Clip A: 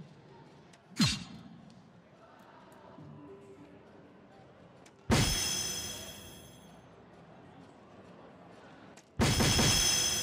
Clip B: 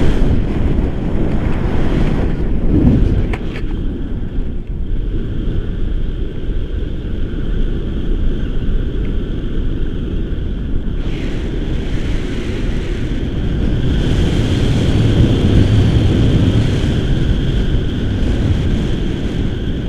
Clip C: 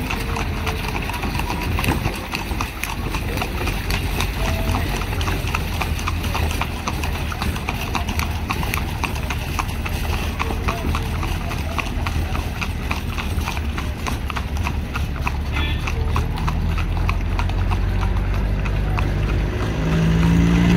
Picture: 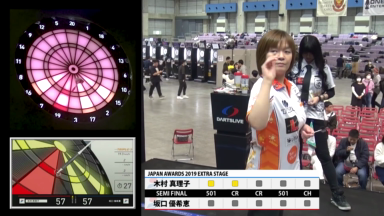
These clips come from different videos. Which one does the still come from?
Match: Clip A